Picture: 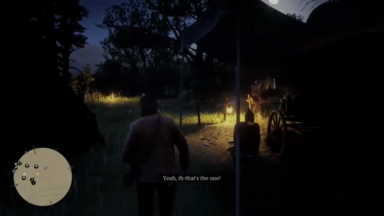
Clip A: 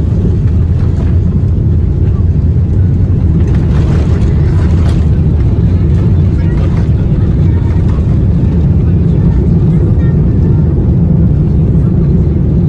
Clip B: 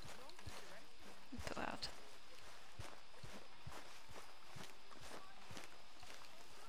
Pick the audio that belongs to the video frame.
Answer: B